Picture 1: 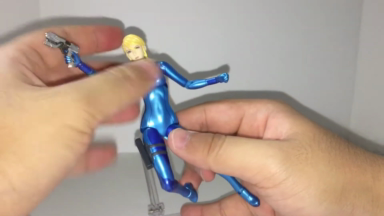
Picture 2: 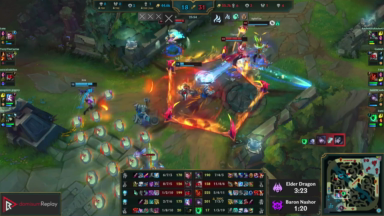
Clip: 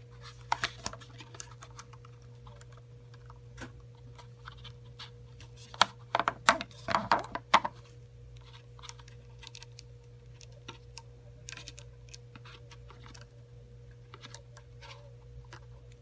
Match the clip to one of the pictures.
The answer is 1